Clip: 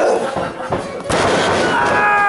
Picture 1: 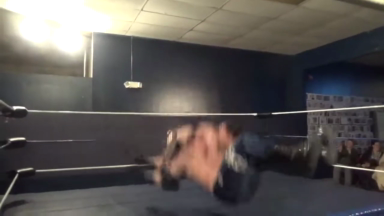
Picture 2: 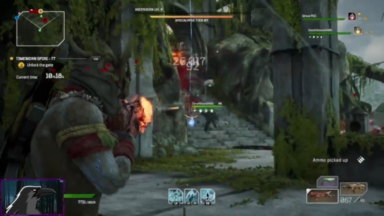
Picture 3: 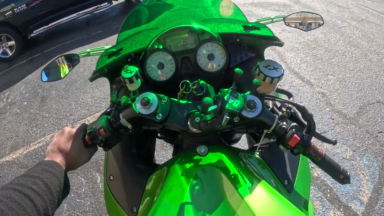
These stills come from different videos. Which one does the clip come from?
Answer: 1